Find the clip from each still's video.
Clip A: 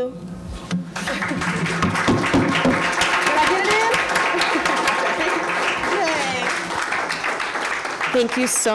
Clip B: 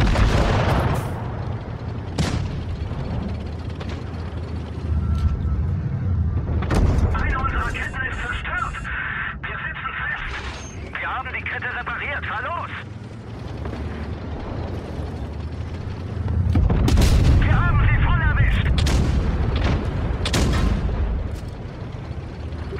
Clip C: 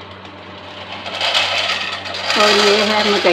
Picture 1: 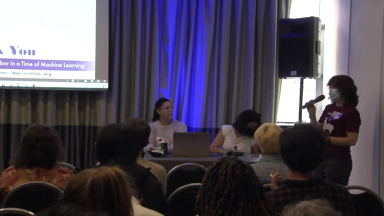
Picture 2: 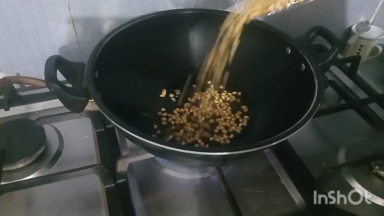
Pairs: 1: A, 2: C